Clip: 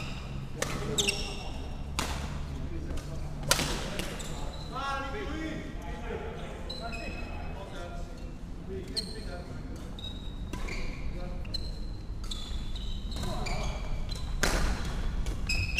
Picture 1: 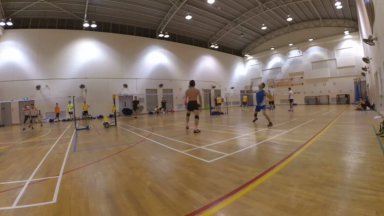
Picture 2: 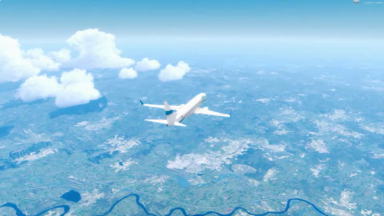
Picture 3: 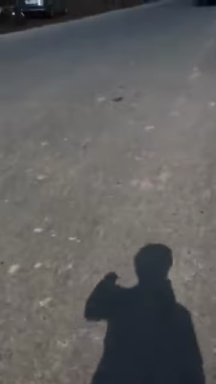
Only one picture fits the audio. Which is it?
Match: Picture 1